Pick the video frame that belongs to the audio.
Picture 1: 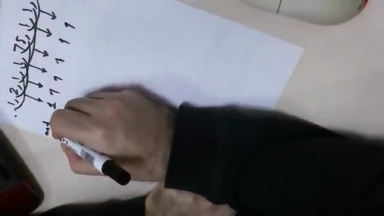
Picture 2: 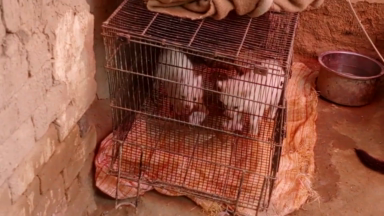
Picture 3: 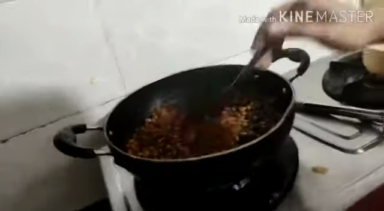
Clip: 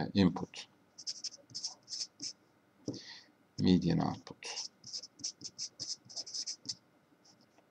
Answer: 1